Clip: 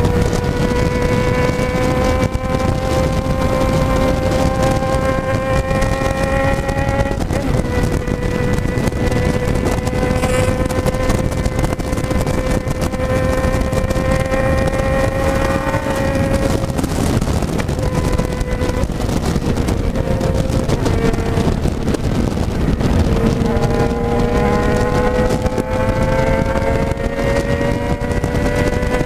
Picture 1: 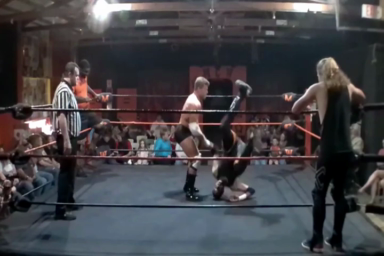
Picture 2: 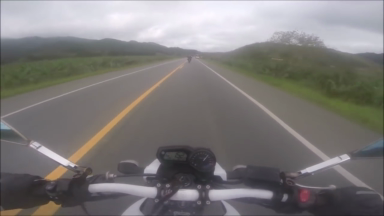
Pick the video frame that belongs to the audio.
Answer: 2